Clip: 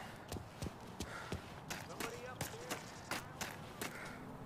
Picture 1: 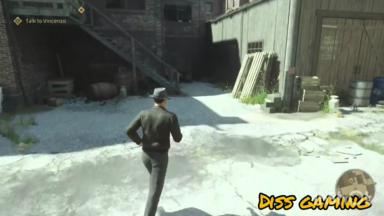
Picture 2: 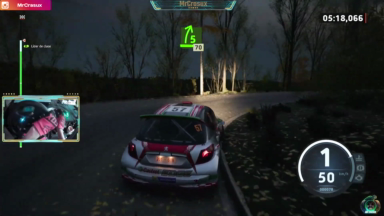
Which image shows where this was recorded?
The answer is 1